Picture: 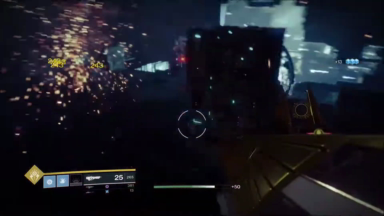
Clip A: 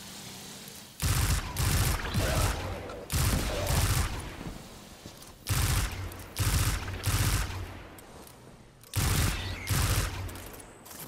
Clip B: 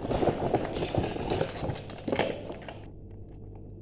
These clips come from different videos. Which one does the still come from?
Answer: A